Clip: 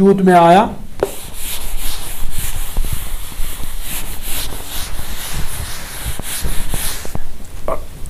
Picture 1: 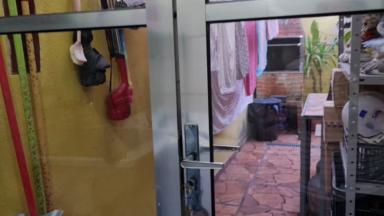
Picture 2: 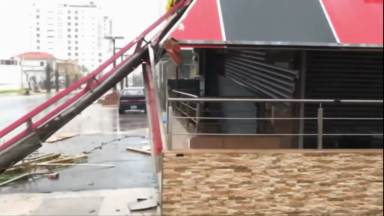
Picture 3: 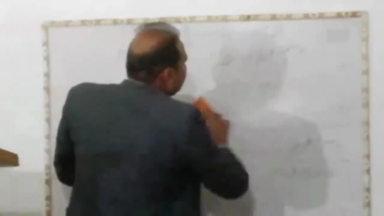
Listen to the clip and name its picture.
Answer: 3